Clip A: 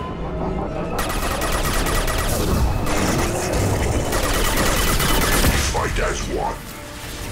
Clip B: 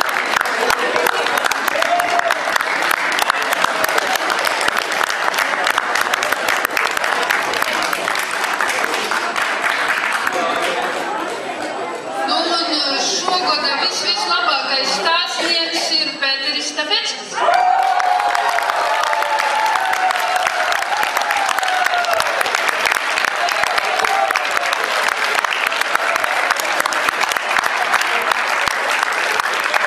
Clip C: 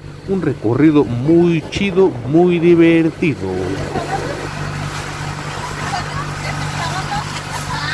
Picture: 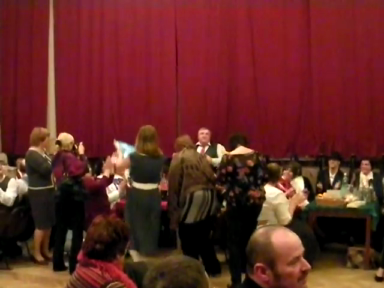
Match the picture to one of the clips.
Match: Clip B